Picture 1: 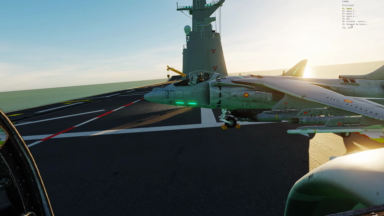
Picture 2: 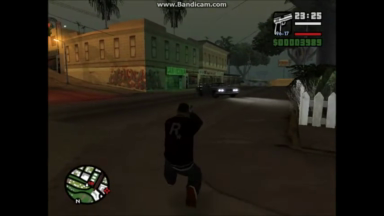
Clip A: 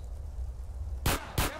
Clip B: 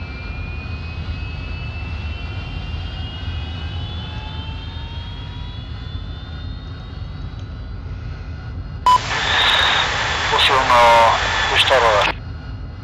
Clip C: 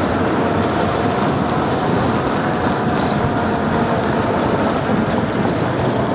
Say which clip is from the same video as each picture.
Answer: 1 B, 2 A